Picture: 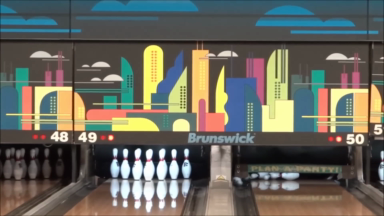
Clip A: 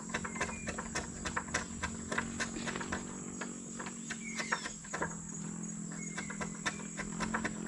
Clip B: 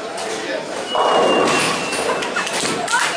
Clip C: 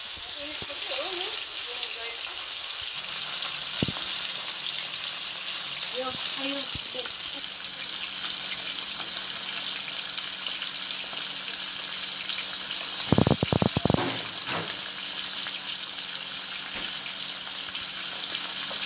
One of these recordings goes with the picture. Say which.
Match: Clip B